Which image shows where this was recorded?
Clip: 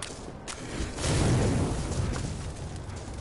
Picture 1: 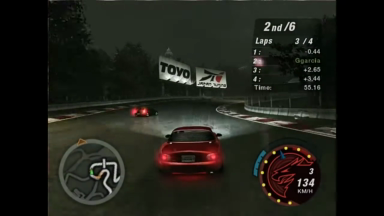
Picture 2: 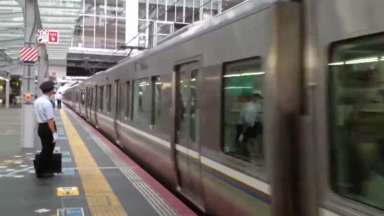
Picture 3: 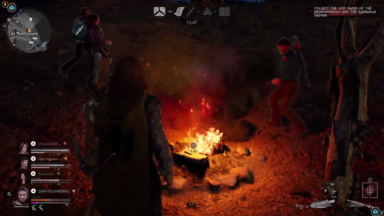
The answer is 3